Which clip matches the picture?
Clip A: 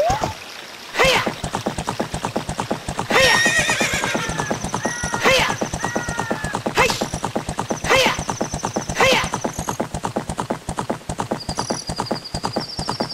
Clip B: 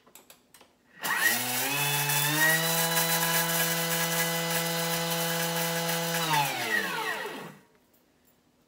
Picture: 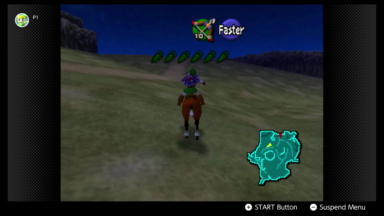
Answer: A